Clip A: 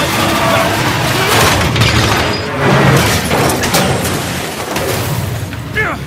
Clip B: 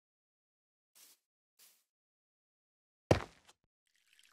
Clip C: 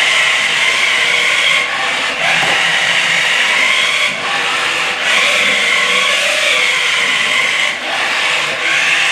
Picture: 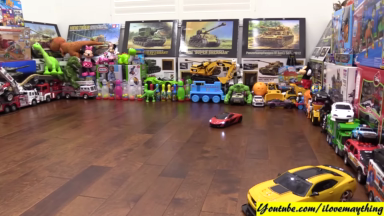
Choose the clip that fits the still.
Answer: C